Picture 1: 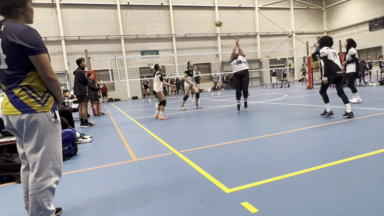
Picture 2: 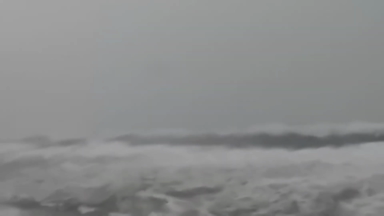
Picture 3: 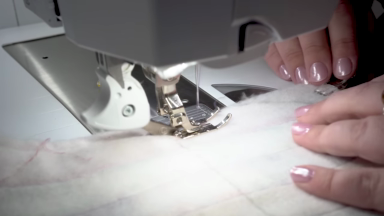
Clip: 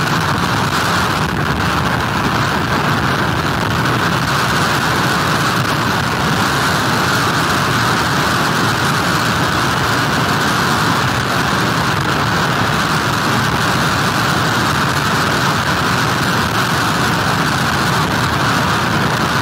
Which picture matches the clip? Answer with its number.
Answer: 2